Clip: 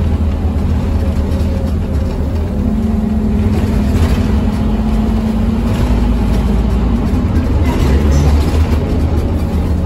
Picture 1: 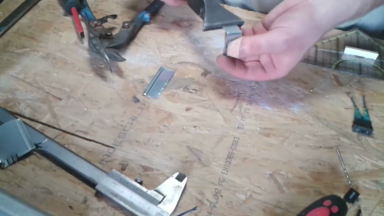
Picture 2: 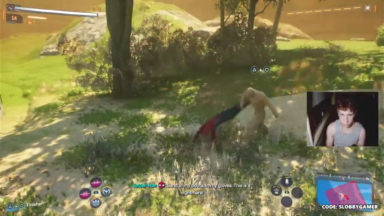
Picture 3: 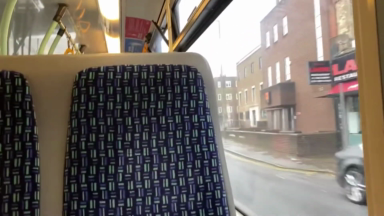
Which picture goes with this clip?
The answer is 3